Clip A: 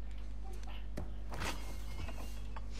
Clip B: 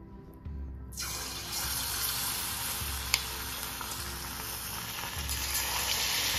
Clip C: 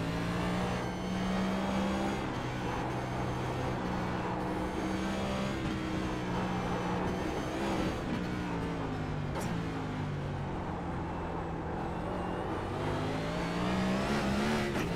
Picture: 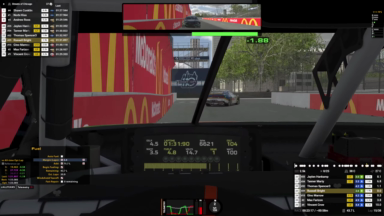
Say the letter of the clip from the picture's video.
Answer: C